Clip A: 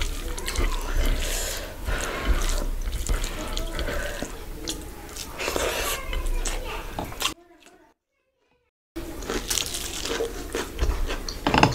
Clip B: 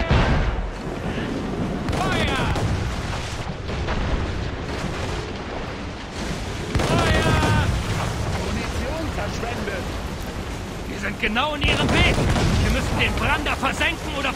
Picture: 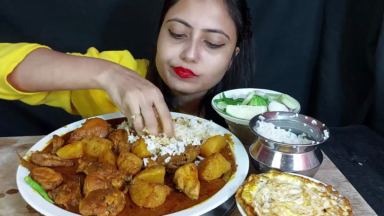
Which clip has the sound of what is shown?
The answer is A